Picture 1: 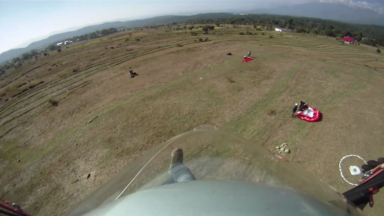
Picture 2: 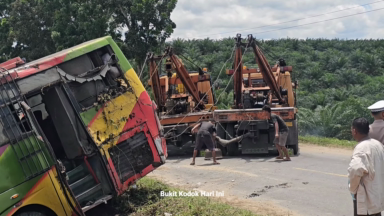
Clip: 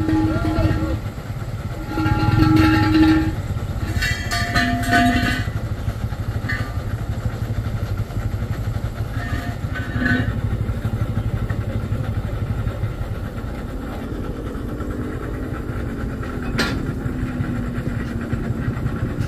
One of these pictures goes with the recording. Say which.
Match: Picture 2